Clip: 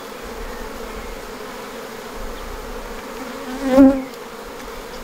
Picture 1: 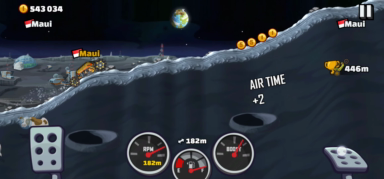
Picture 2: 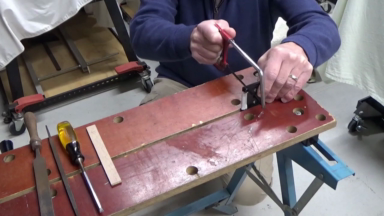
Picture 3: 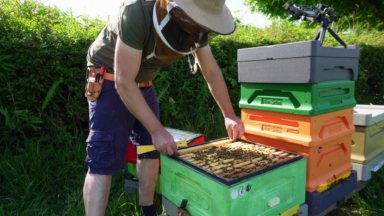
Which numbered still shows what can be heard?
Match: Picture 3